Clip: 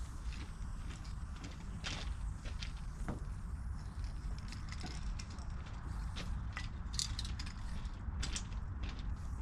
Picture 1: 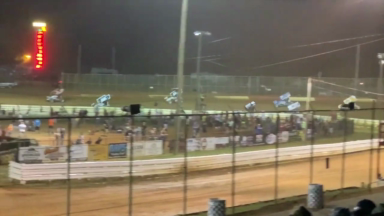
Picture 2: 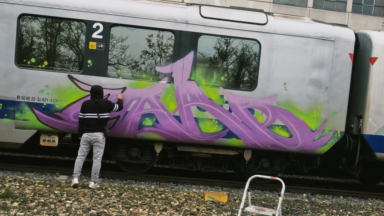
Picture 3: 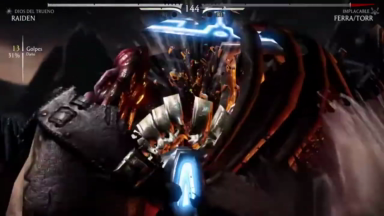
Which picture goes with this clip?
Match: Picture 2